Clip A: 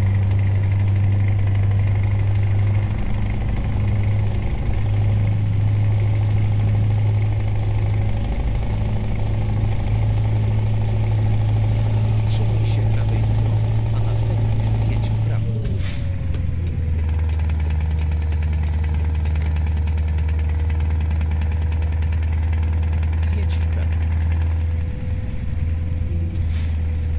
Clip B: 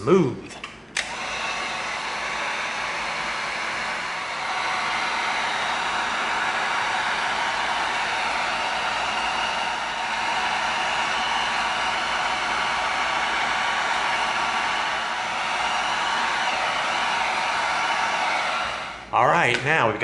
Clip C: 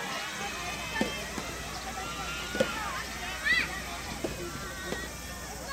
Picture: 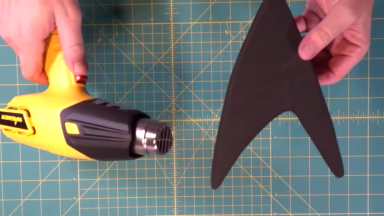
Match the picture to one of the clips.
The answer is B